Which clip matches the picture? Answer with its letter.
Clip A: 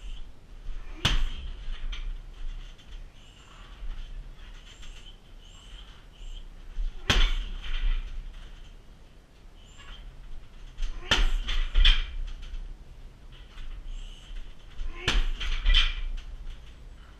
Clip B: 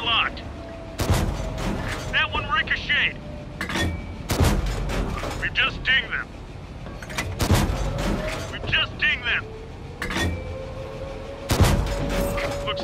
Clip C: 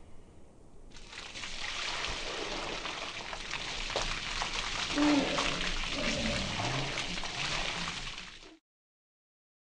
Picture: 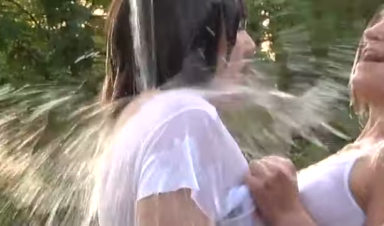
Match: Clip C